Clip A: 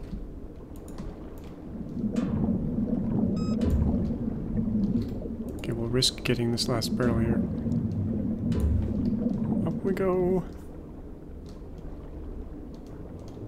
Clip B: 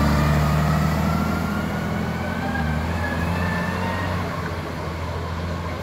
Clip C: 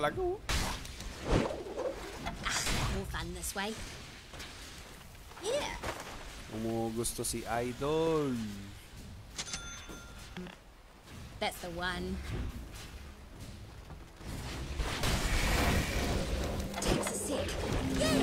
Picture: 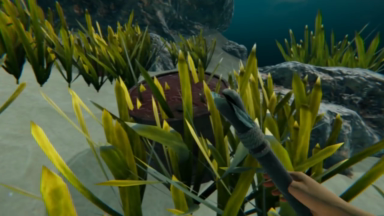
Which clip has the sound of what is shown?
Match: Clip A